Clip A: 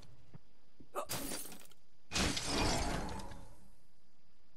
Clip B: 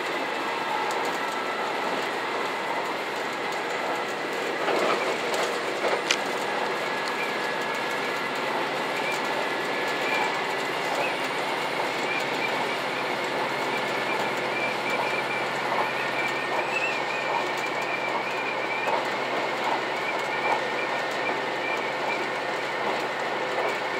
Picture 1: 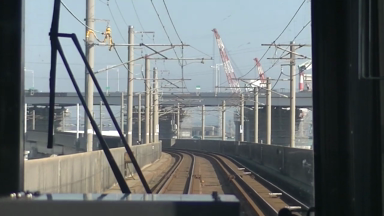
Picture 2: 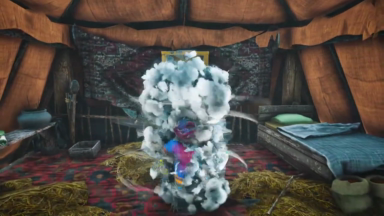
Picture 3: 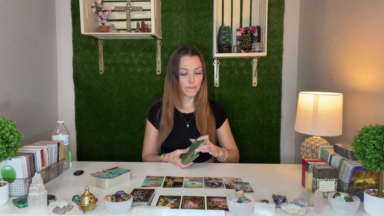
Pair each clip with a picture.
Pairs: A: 2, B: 1